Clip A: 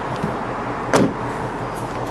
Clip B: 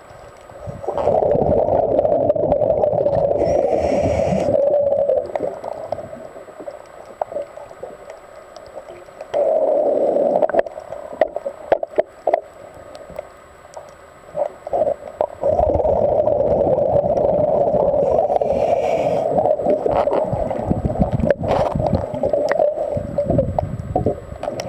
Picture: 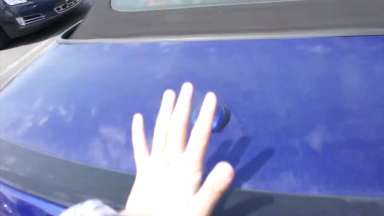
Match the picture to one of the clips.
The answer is A